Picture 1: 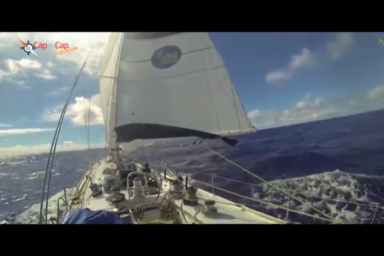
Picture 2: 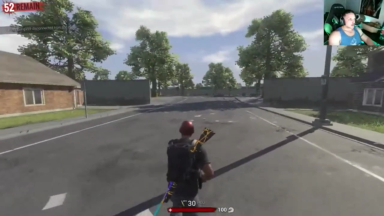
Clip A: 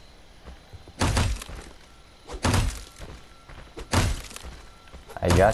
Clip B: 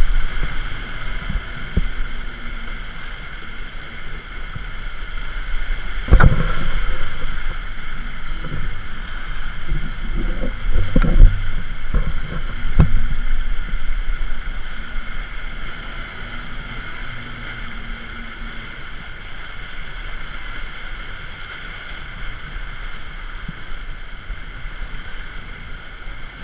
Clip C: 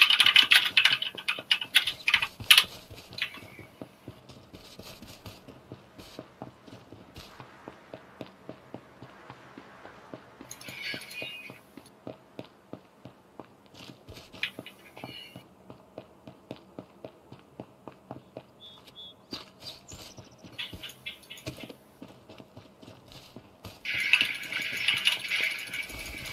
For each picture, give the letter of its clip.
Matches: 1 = B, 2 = C